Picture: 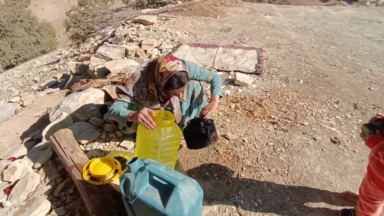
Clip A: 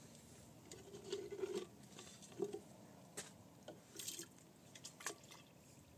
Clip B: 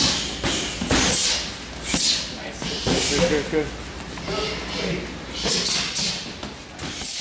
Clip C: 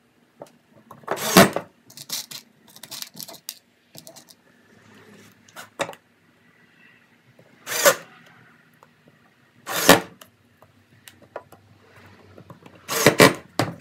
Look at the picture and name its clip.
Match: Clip A